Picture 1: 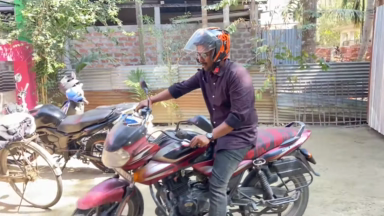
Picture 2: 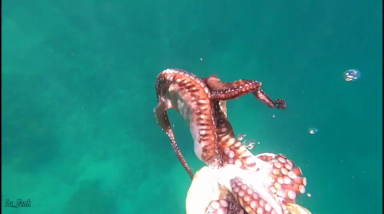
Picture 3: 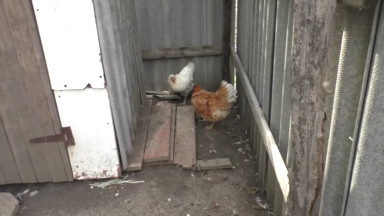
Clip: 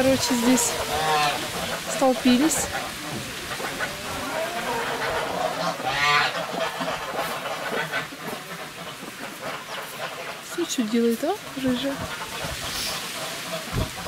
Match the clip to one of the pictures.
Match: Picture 3